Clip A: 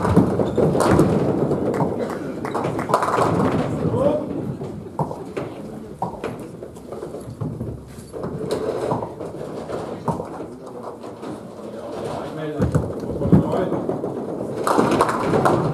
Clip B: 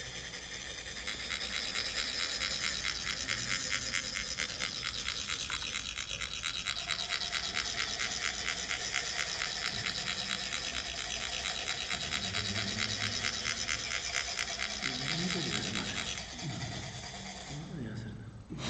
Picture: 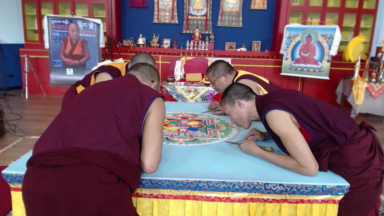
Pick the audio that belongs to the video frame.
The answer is B